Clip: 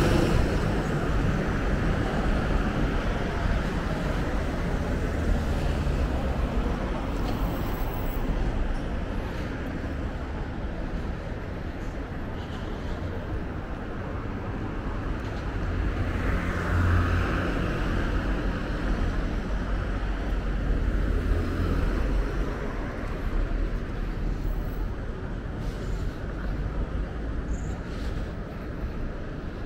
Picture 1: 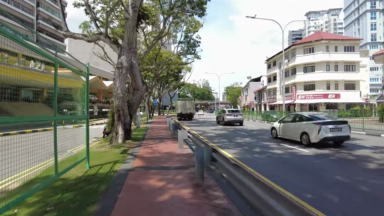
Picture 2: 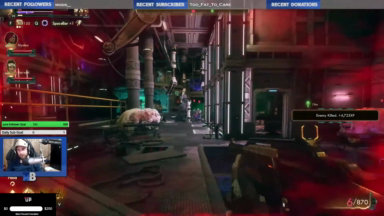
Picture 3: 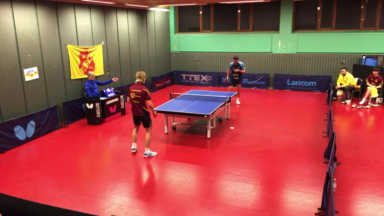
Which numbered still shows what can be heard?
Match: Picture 1